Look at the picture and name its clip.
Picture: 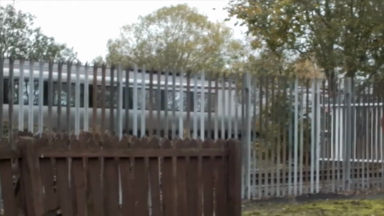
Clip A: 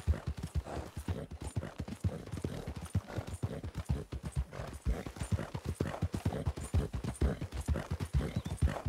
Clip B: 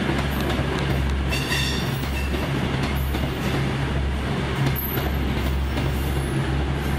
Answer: B